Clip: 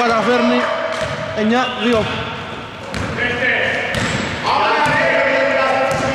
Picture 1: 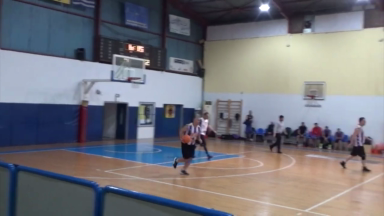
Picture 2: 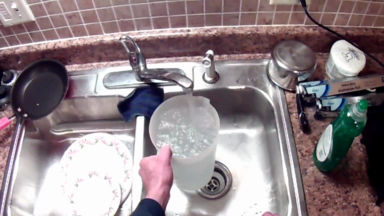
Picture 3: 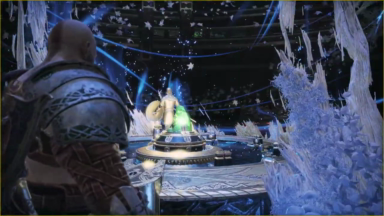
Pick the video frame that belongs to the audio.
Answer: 1